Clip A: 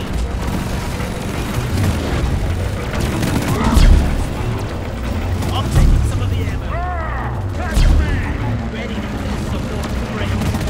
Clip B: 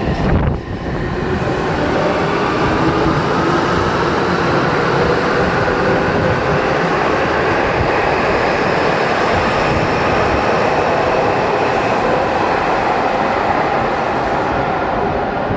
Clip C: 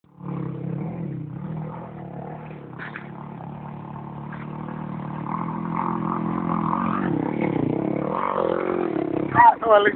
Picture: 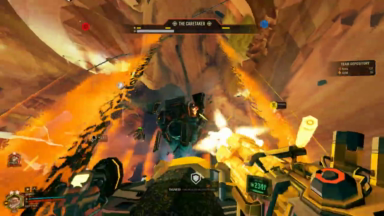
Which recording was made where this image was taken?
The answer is A